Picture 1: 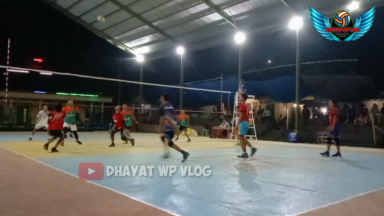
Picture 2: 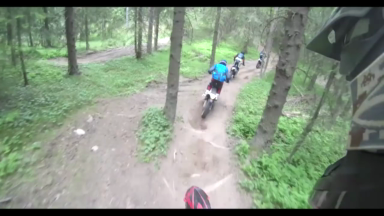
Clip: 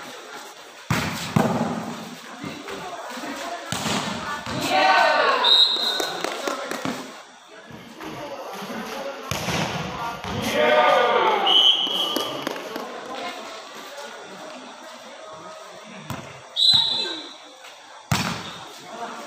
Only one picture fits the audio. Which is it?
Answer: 1